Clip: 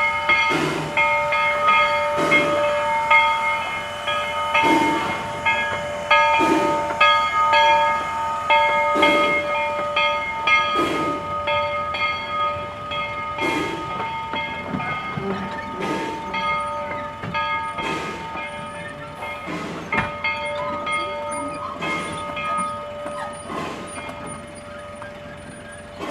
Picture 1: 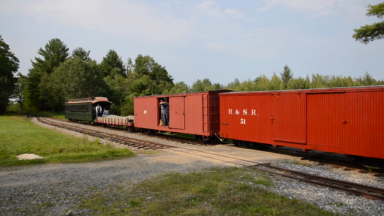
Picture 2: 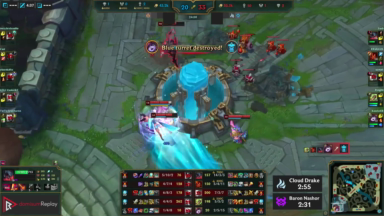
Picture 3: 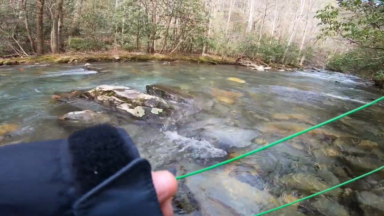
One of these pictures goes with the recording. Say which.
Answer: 1